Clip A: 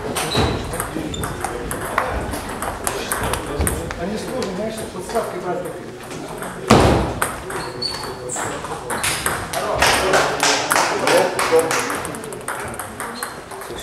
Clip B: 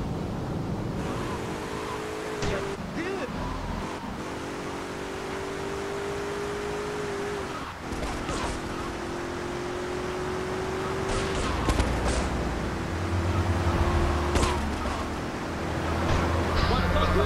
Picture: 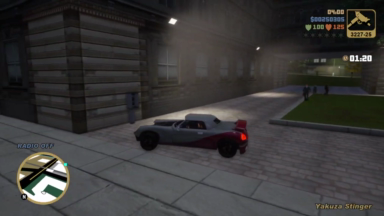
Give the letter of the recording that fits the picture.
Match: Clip B